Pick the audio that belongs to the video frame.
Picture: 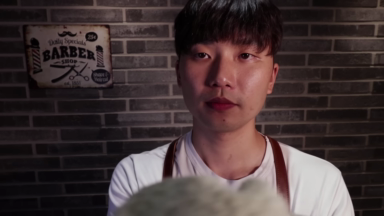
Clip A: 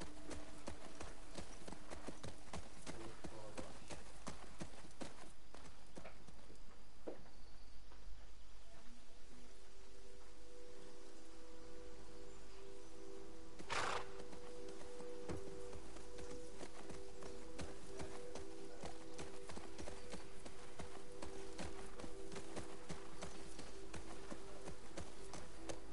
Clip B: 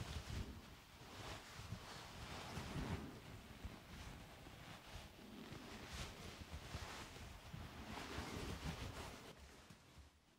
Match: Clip B